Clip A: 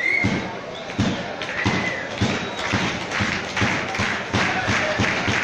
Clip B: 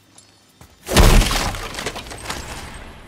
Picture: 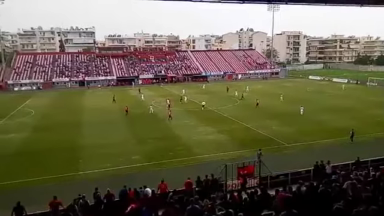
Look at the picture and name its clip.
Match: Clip A